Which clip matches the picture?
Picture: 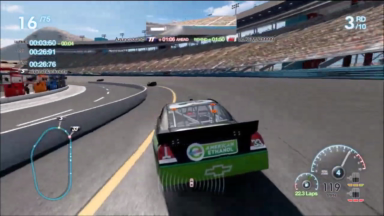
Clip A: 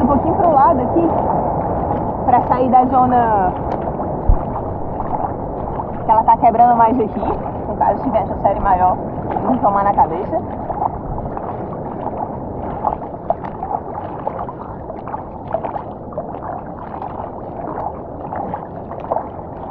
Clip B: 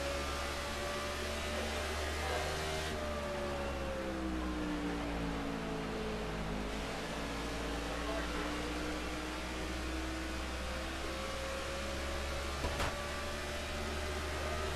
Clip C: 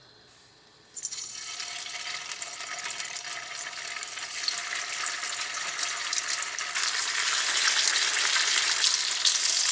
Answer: B